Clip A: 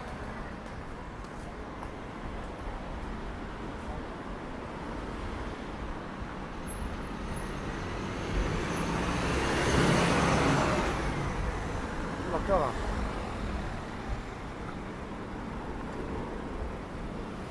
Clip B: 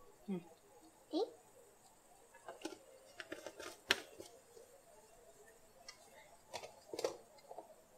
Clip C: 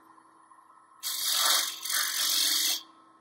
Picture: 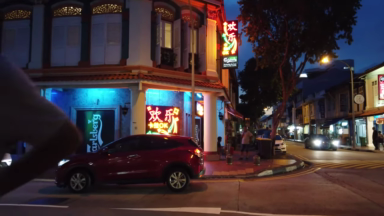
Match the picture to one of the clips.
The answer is A